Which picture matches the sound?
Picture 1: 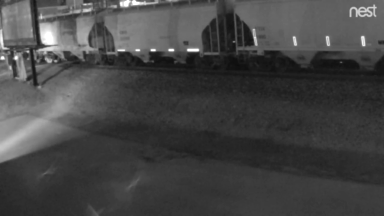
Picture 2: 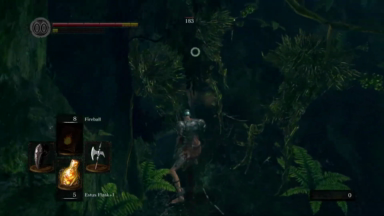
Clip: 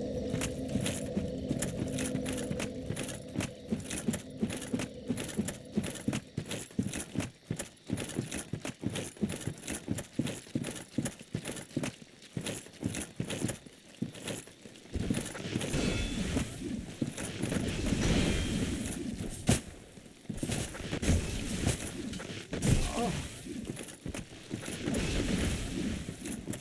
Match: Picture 2